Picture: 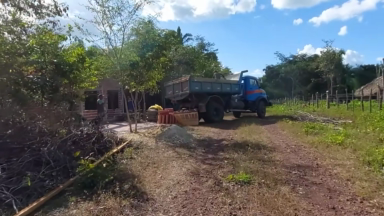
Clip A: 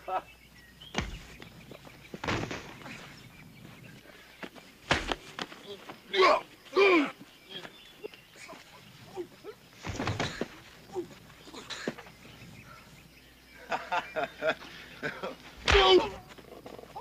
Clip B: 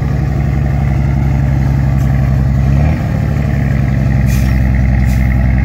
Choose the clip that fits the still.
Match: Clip B